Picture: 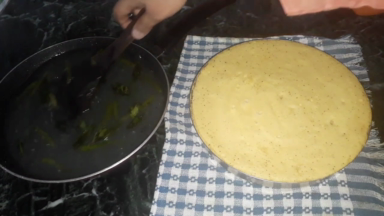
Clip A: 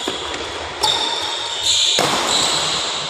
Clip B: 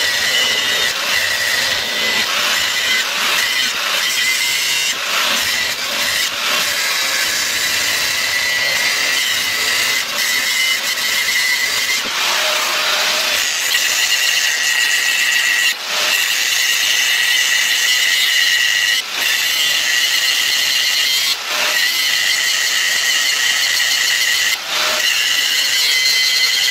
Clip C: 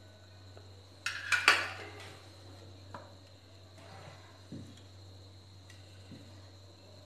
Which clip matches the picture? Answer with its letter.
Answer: C